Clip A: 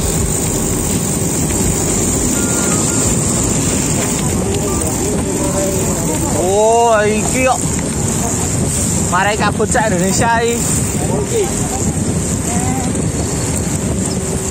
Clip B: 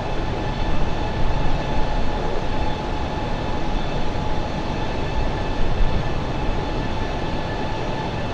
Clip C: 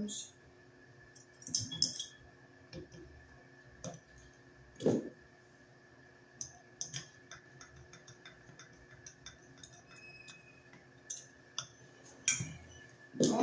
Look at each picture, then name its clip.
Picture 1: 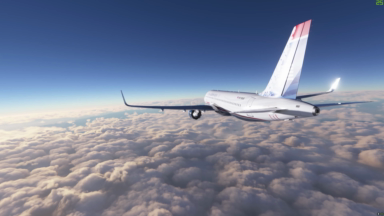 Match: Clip B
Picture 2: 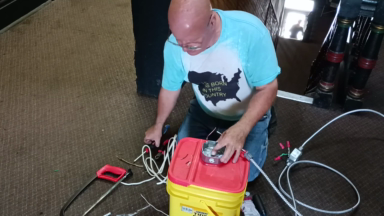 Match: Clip C